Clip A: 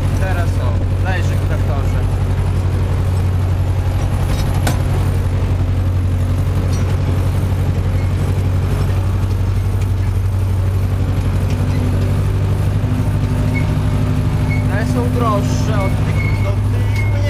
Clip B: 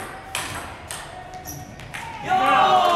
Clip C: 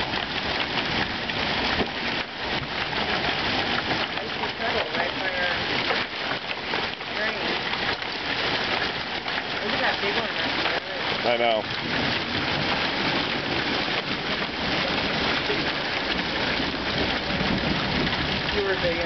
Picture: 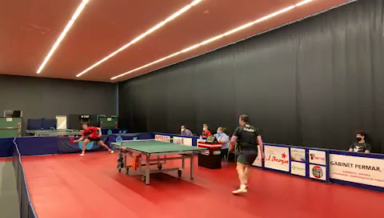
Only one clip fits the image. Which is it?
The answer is B